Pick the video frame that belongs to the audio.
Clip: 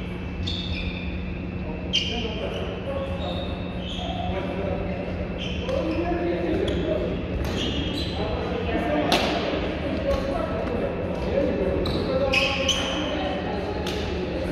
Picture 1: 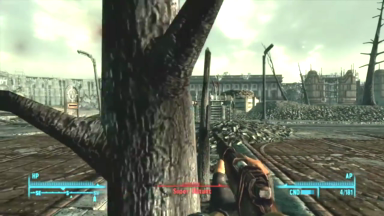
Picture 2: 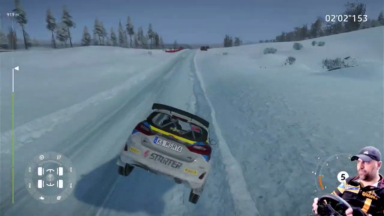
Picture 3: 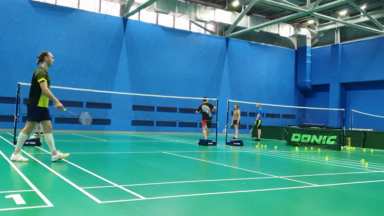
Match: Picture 3